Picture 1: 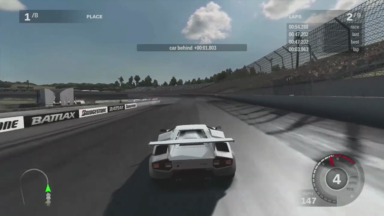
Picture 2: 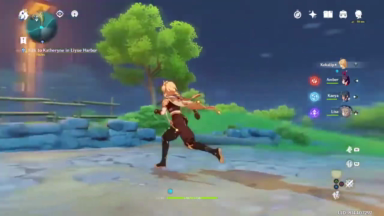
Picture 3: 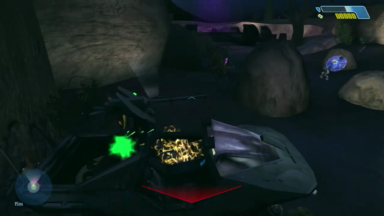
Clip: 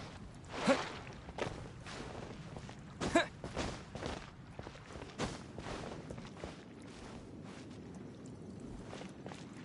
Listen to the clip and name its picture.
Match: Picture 2